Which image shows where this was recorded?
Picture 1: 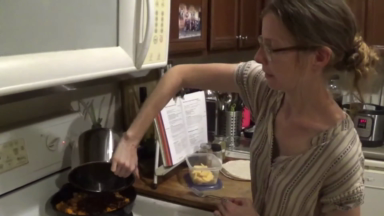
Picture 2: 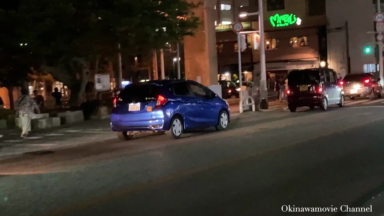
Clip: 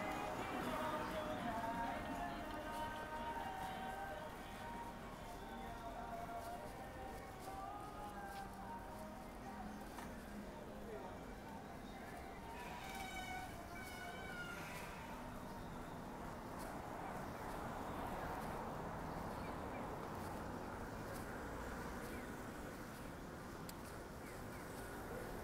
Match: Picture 2